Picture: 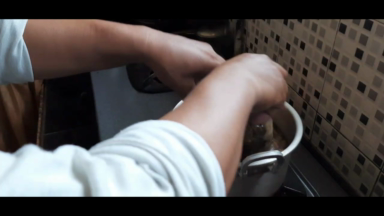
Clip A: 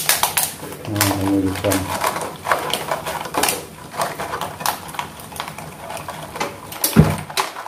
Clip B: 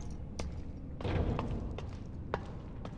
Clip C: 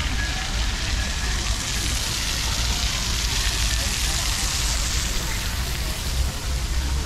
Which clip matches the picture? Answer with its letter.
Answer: A